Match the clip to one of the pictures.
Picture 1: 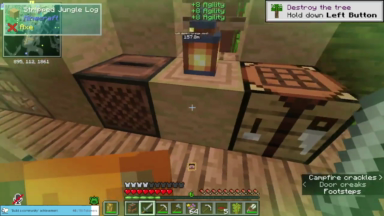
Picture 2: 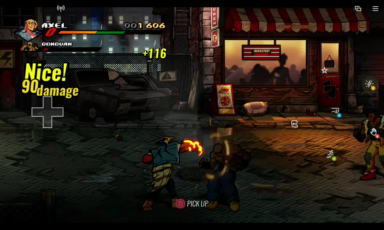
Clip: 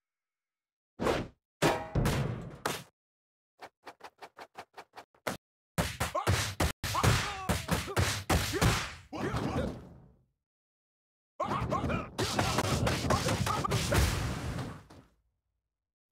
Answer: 2